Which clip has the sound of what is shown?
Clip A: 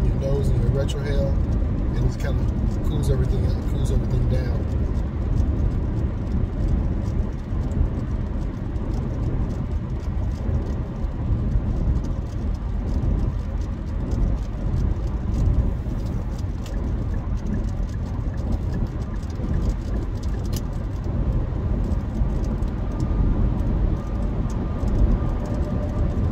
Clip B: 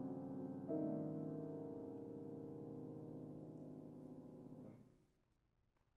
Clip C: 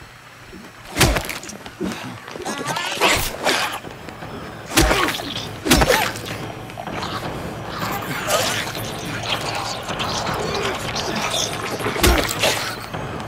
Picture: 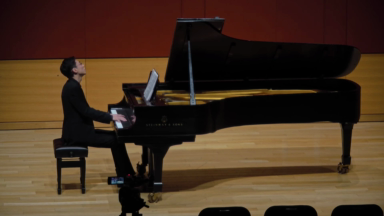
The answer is B